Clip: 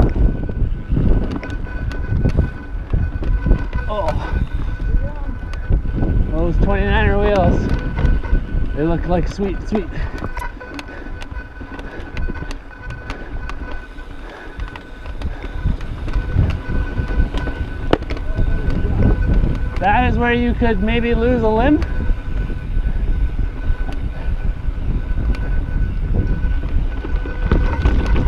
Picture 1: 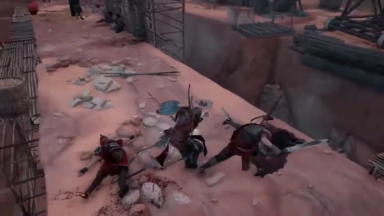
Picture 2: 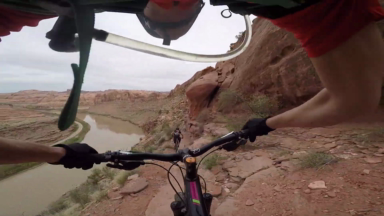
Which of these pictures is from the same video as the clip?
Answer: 2